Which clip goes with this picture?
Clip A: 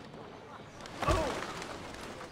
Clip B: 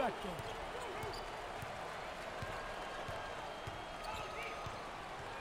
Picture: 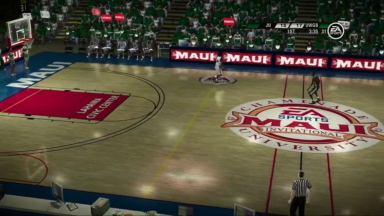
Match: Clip B